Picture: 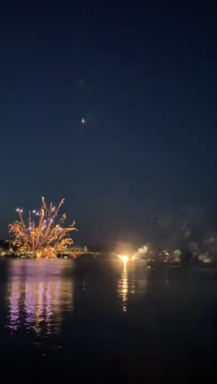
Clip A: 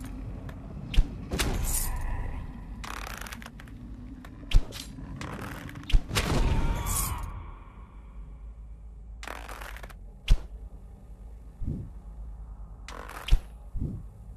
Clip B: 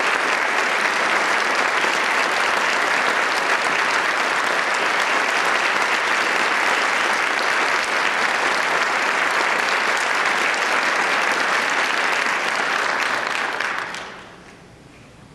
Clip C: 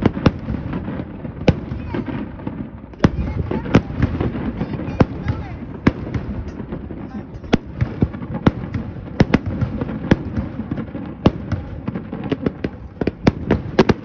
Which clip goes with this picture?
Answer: C